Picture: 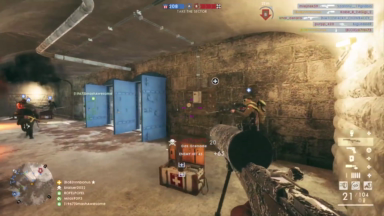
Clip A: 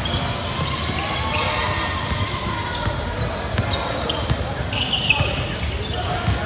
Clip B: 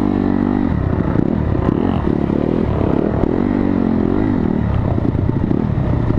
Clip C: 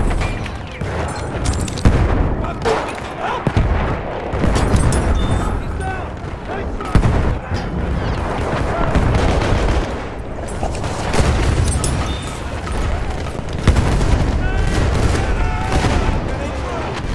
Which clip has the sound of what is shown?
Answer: C